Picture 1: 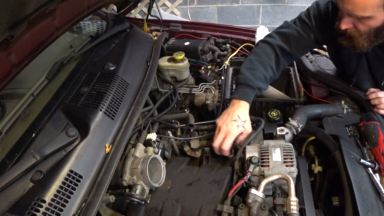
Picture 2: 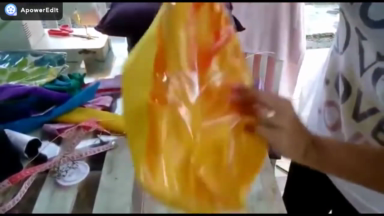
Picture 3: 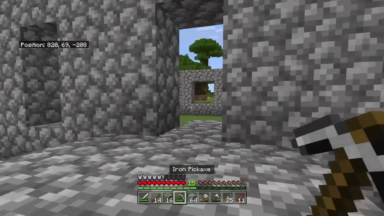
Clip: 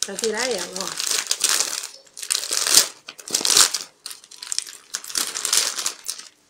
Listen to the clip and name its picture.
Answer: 2